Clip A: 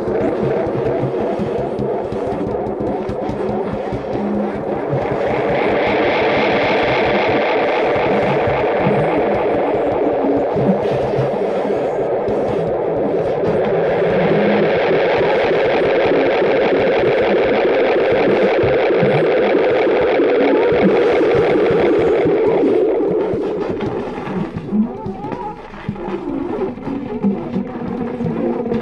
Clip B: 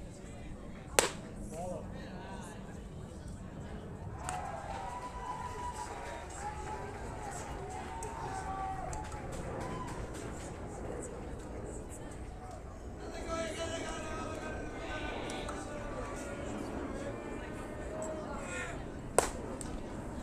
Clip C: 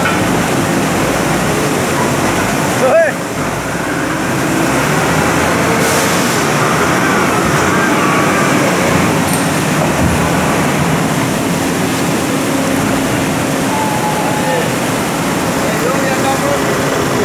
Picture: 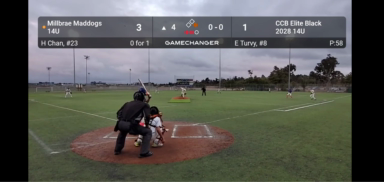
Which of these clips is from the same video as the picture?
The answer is B